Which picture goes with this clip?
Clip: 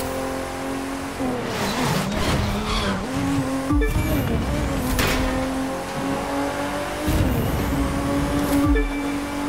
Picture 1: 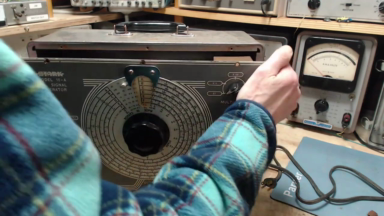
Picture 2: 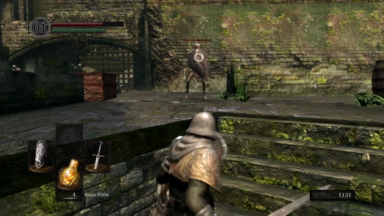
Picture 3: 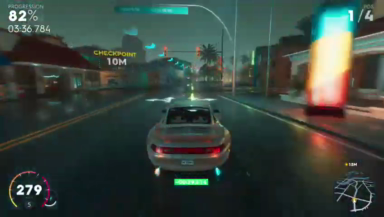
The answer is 3